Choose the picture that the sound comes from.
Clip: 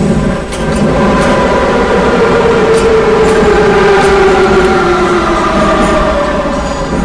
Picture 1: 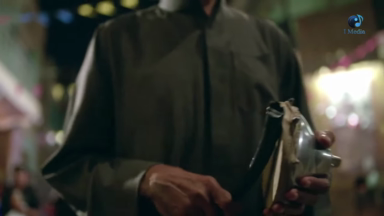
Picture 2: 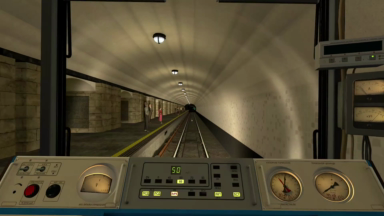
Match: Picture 2